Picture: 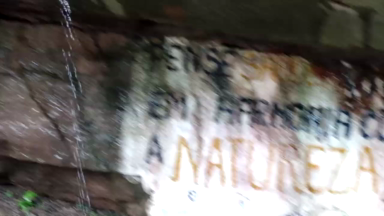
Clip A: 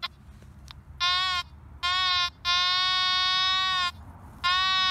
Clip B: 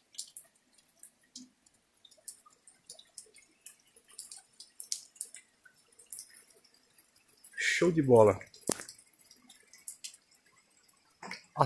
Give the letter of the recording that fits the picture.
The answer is B